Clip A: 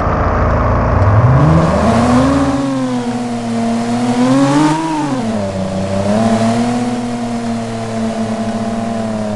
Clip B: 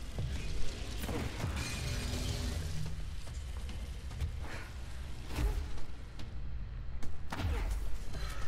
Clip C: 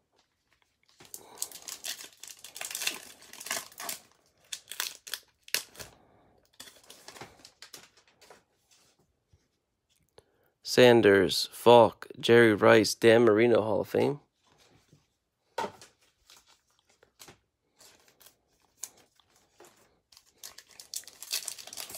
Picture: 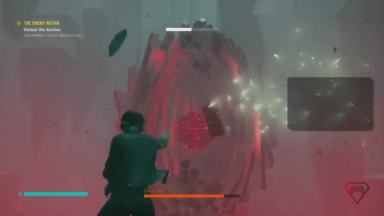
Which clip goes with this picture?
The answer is B